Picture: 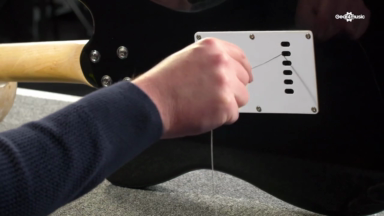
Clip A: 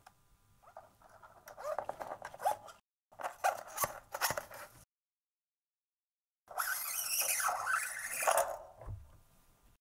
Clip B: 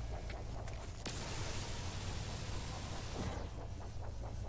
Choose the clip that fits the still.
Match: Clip A